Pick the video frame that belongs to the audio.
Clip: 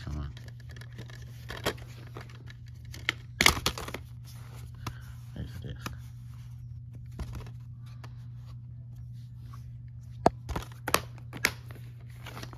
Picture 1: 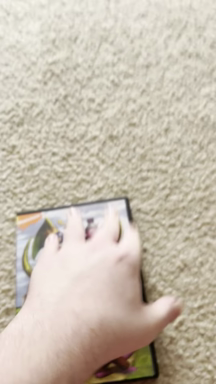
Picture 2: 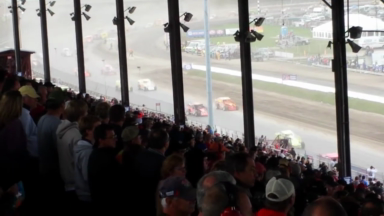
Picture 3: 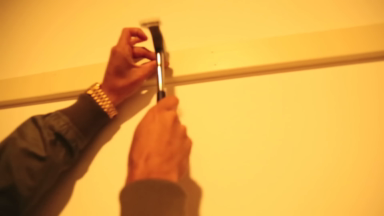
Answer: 1